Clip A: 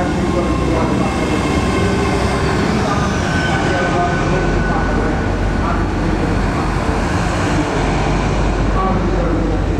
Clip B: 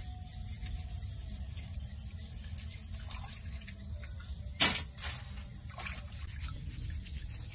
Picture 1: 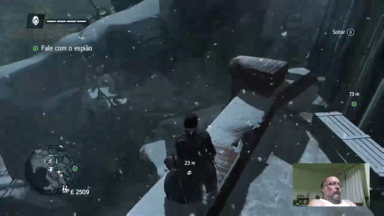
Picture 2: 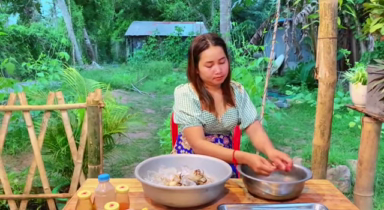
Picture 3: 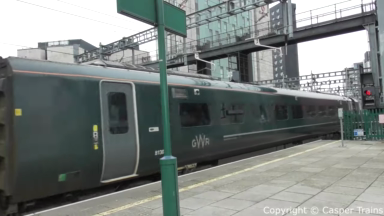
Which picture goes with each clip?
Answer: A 3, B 2